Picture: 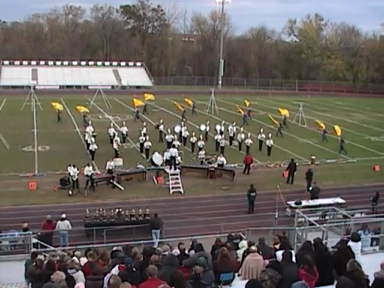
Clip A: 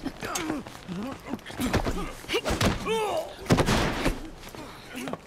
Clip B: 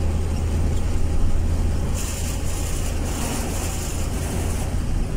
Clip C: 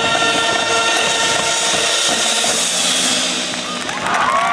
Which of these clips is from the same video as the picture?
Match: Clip C